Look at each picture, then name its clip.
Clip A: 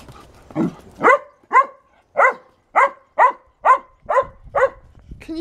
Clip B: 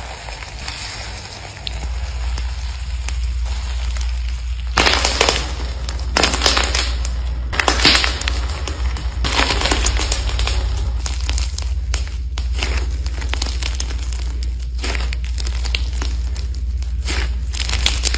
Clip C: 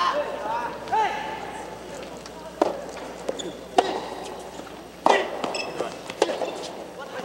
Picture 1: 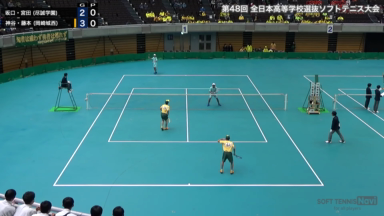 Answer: C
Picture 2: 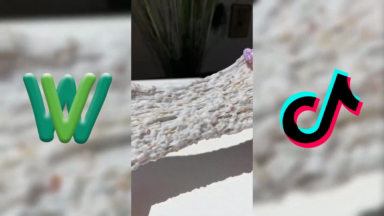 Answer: B